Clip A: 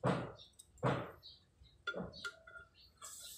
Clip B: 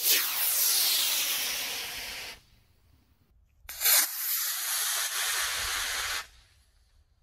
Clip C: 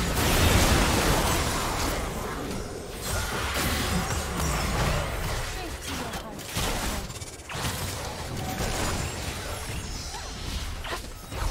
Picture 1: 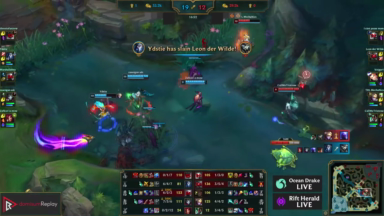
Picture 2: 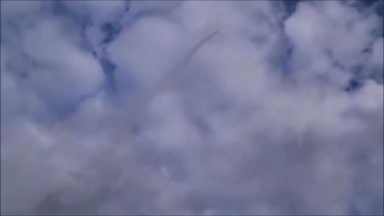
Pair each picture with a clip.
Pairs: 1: C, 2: B